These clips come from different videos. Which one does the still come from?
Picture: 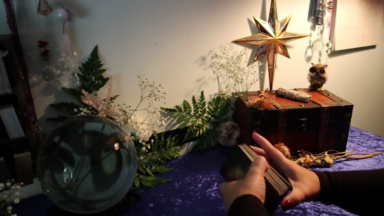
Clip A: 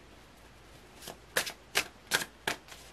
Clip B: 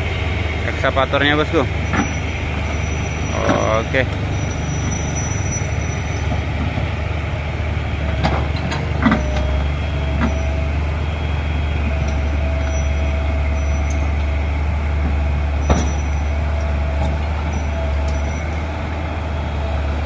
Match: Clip A